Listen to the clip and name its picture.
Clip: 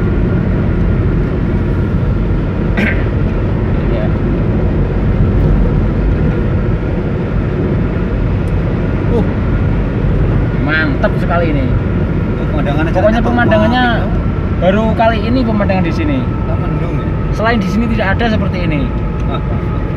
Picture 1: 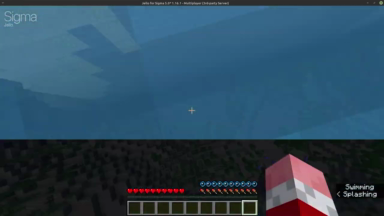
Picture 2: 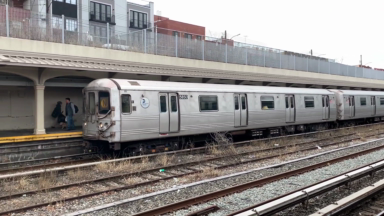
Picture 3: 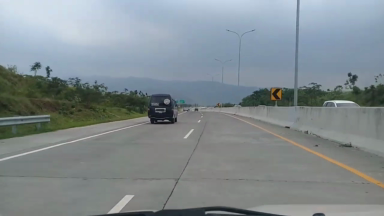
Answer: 3